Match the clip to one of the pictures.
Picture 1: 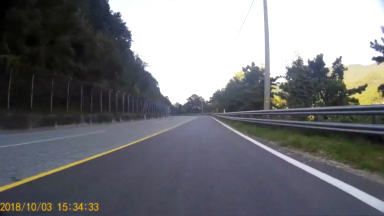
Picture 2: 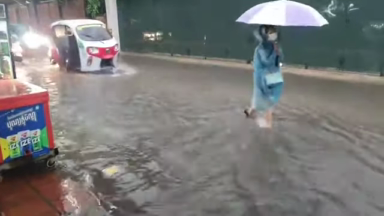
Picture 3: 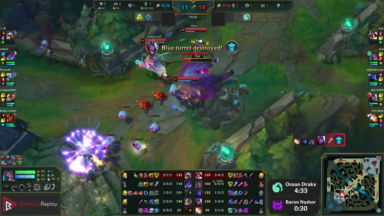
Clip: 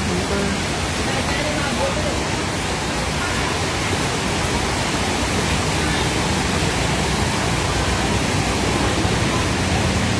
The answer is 2